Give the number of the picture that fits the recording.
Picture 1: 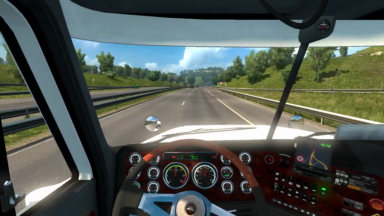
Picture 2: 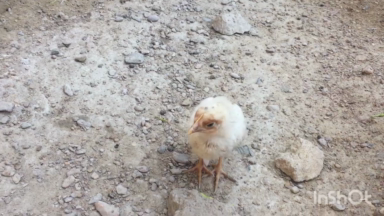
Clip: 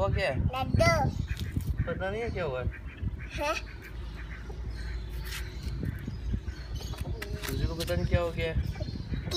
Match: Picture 2